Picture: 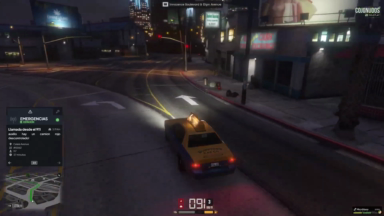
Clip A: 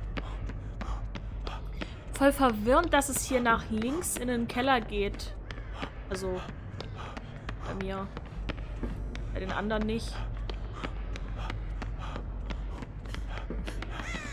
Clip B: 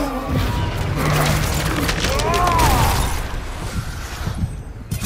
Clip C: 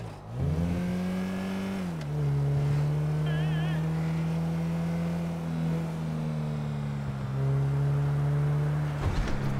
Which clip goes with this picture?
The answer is C